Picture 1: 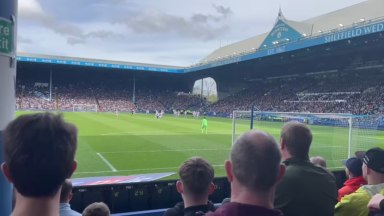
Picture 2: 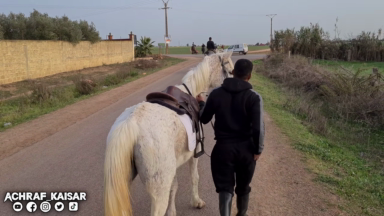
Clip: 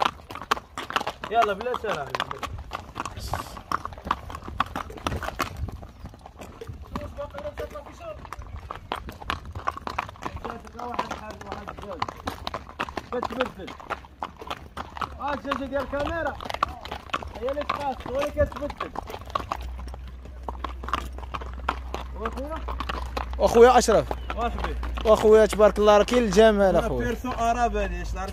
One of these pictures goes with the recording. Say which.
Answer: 2